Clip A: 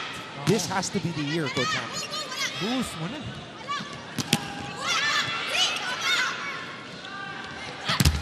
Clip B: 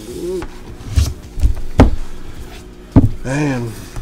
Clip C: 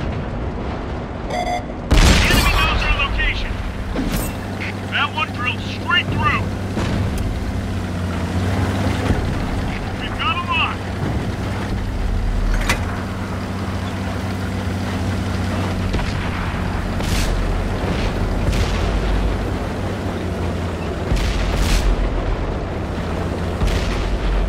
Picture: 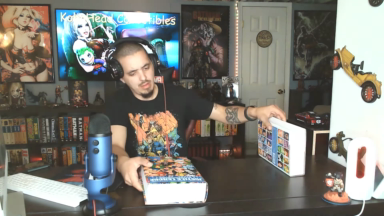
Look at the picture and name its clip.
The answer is B